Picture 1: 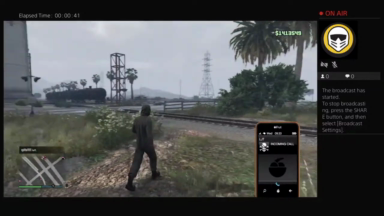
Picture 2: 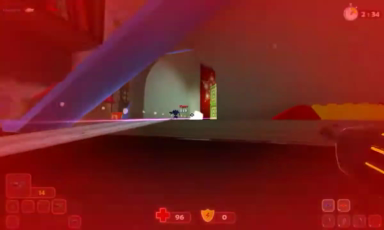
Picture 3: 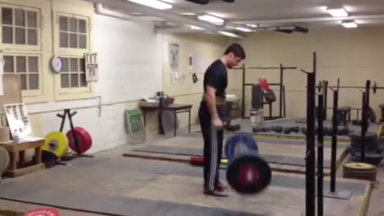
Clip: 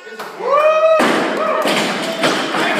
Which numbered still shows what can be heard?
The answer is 3